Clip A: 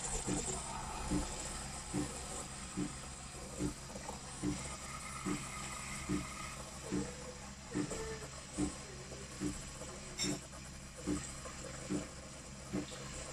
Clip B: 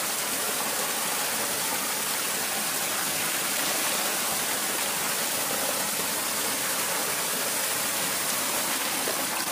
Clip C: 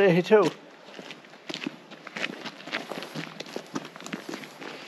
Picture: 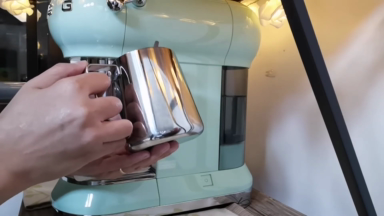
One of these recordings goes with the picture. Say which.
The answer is A